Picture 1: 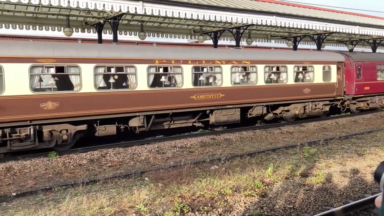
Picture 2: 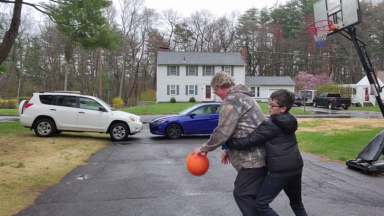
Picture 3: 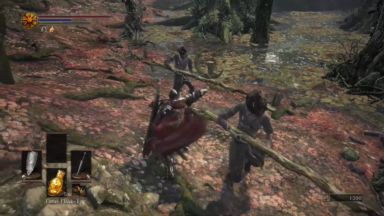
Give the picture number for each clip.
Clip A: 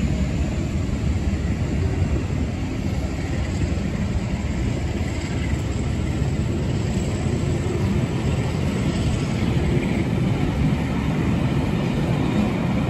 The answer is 1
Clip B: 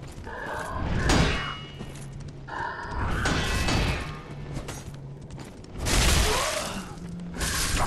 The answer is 3